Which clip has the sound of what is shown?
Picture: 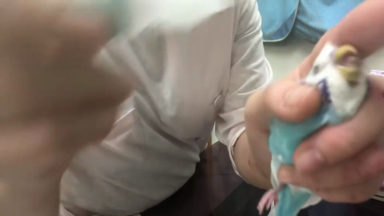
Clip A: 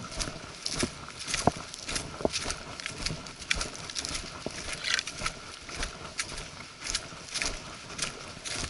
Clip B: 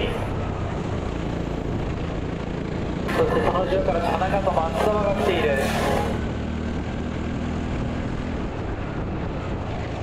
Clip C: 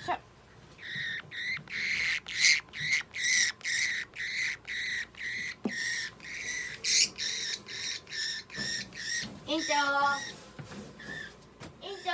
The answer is C